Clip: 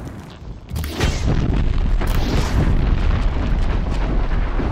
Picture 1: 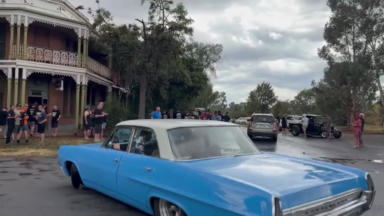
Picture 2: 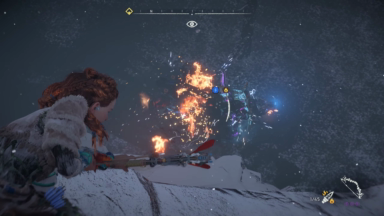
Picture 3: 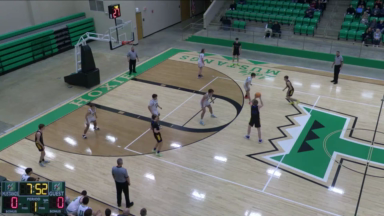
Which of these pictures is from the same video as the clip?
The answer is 2